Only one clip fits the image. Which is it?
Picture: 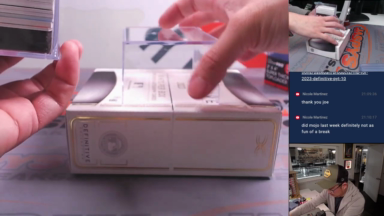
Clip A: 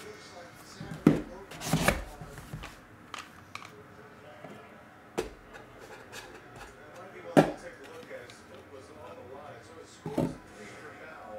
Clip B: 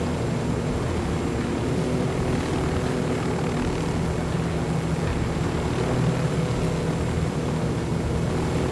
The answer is A